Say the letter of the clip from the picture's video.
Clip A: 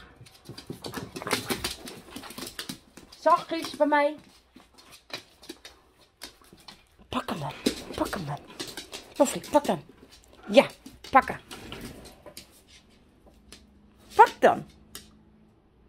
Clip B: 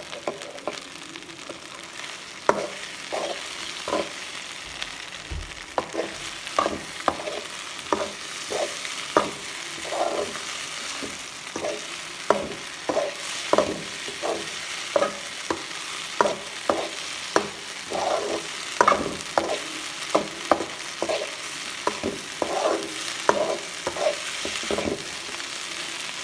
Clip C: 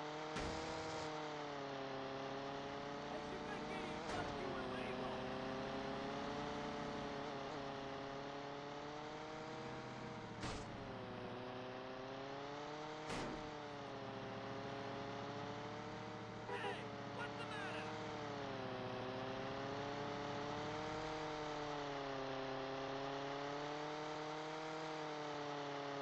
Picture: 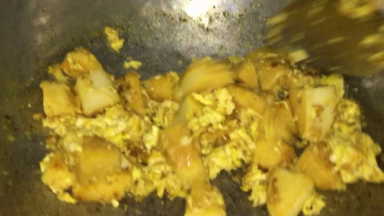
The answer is B